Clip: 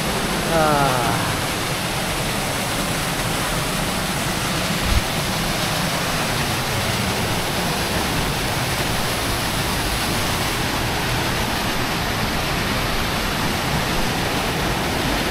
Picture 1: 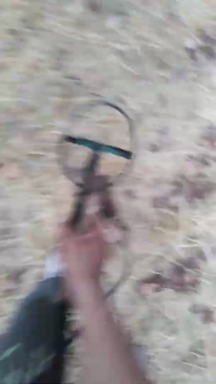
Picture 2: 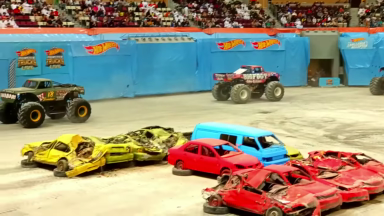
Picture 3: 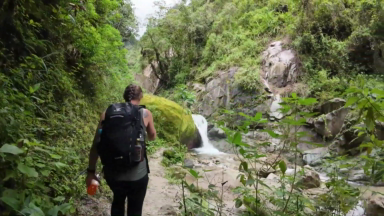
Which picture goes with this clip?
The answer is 3